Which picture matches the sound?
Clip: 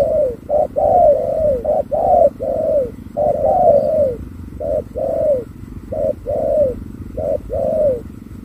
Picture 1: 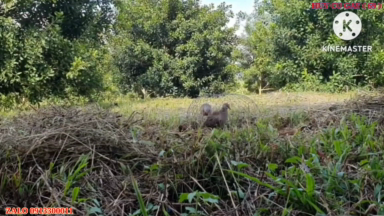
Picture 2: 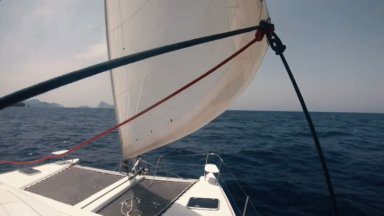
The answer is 1